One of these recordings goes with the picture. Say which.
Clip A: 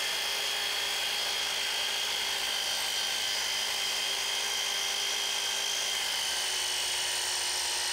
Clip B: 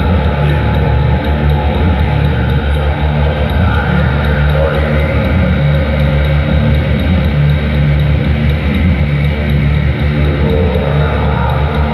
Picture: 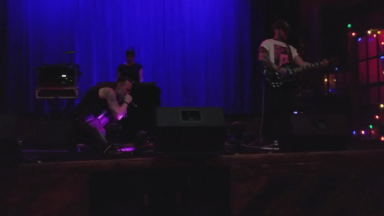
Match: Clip B